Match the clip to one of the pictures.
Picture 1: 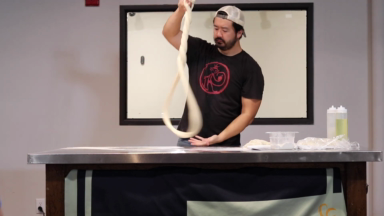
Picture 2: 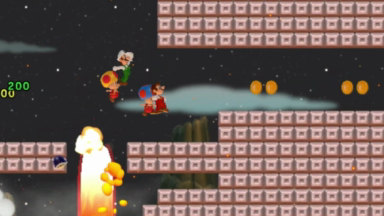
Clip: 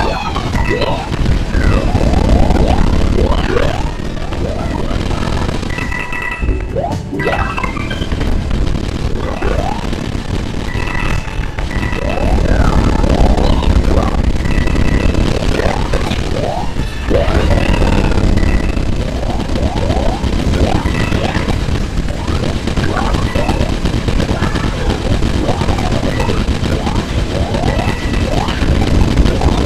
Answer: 2